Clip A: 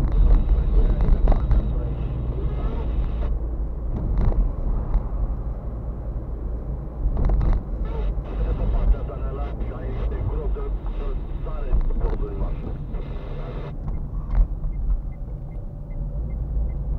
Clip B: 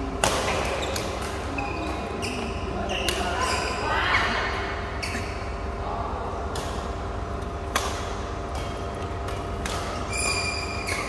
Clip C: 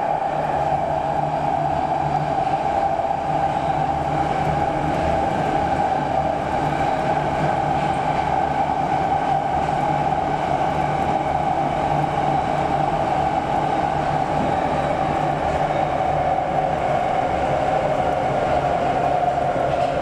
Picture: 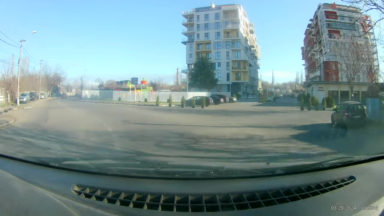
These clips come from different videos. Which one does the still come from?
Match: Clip A